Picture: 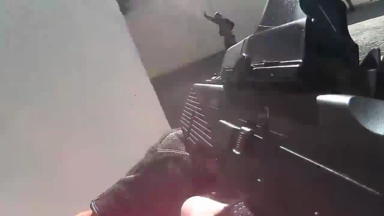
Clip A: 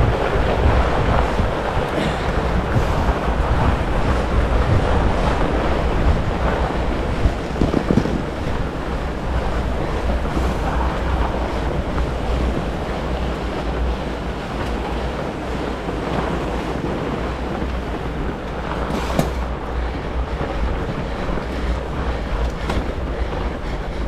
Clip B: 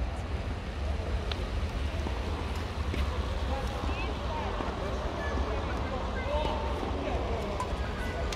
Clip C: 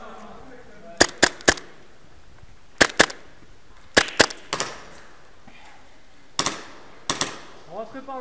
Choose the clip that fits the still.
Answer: C